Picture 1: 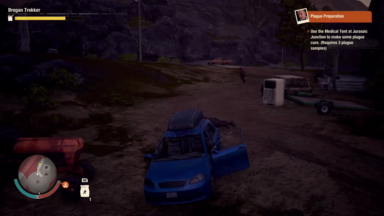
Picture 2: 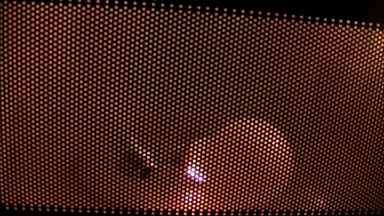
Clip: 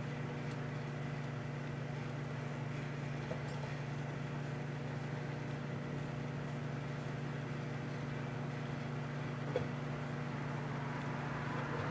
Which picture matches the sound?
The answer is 2